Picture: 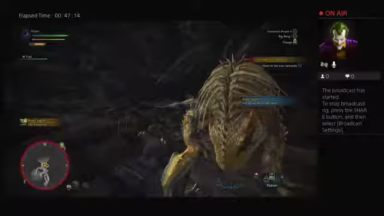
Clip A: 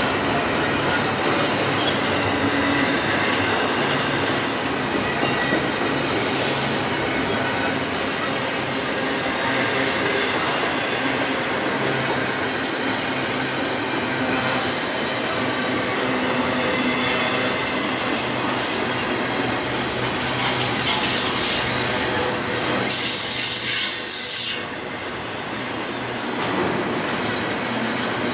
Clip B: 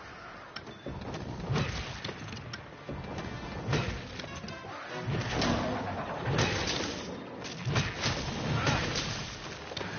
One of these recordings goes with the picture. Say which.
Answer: B